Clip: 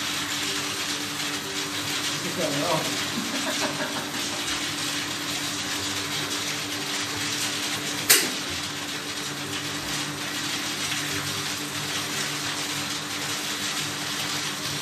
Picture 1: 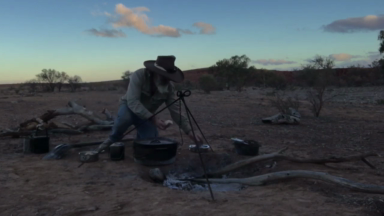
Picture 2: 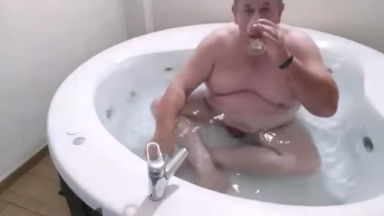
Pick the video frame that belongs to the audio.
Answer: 2